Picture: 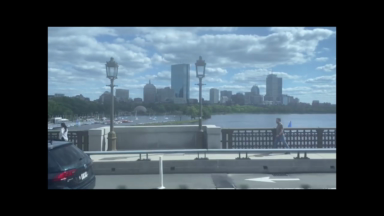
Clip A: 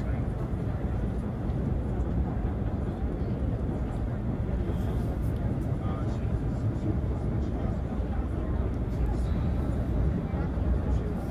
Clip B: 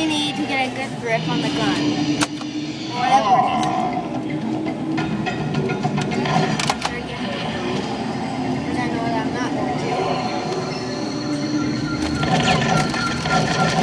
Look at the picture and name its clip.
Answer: A